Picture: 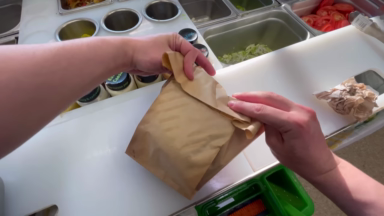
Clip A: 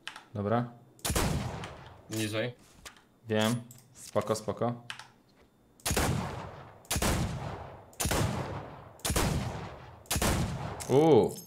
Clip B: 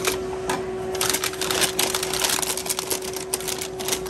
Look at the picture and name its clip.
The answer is B